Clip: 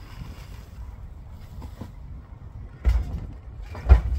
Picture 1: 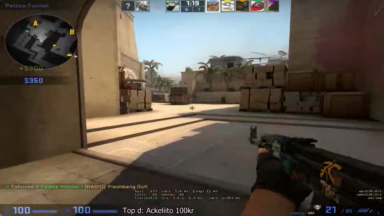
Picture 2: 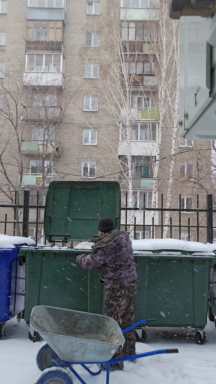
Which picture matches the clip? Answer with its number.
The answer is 2